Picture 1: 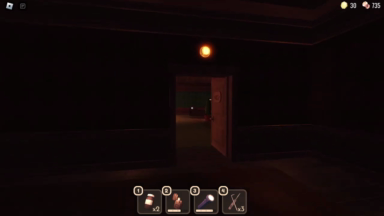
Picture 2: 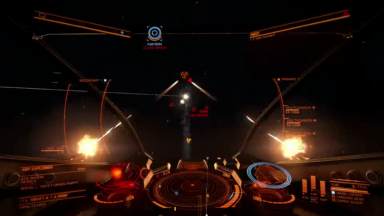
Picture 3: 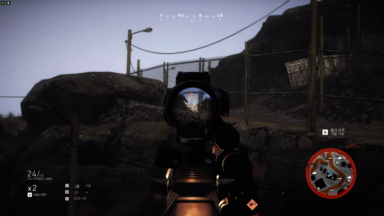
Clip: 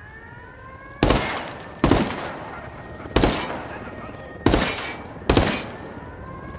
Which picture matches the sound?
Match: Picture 3